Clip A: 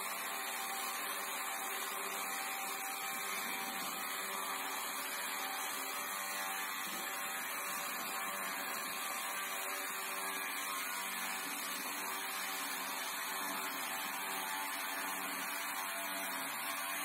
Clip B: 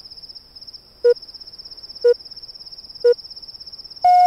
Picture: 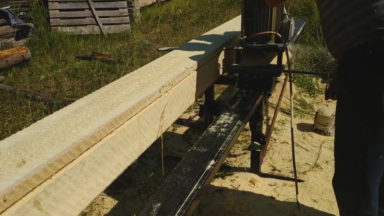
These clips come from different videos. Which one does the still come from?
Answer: A